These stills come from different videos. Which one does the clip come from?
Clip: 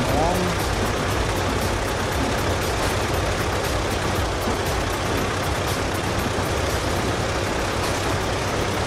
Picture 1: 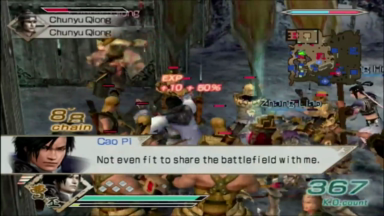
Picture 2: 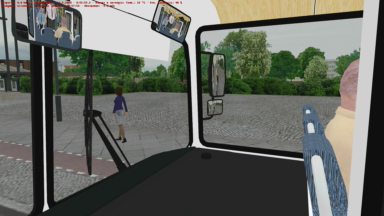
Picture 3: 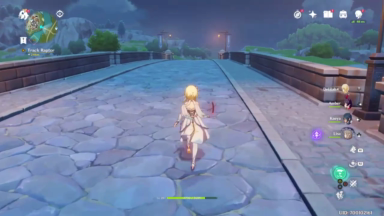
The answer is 2